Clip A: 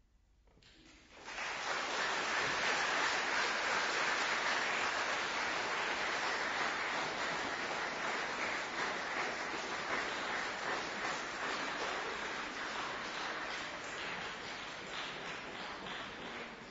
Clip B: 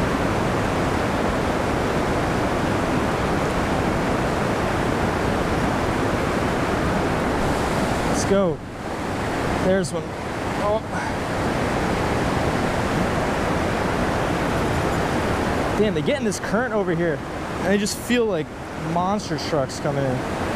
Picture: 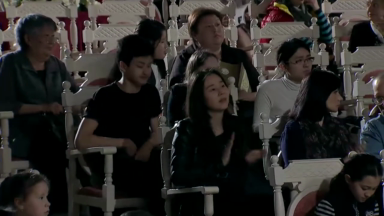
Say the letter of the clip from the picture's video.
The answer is A